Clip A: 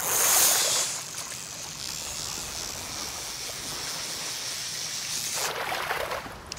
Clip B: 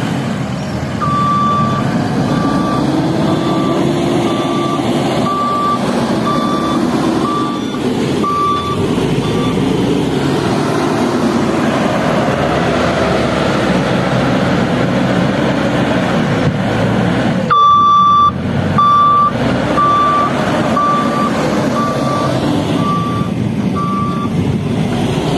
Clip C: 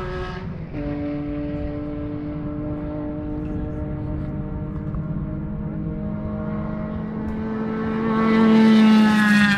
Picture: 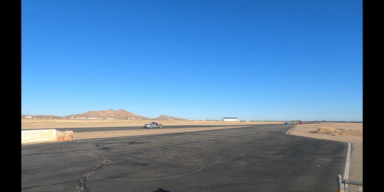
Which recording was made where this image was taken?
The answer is C